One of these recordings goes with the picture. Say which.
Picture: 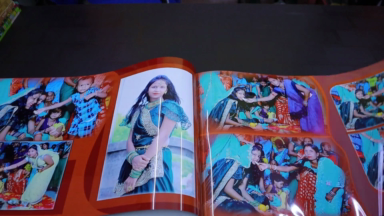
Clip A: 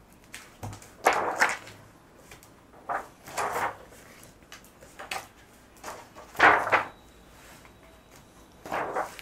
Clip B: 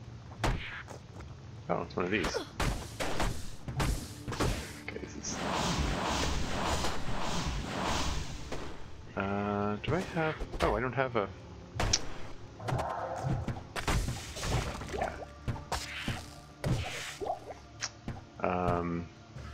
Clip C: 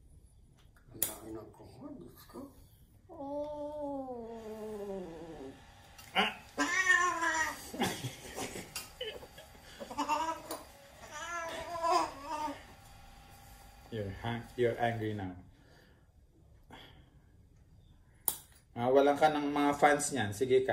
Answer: A